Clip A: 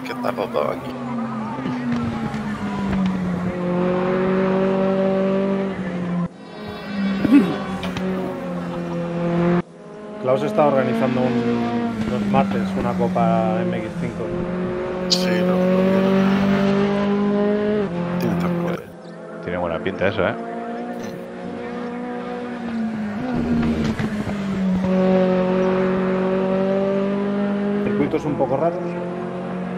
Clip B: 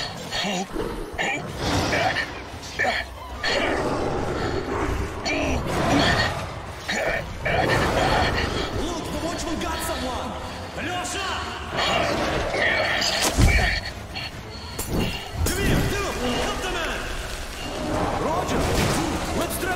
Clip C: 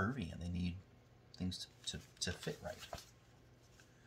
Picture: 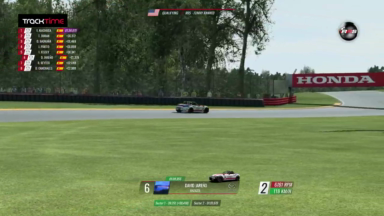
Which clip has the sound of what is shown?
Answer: A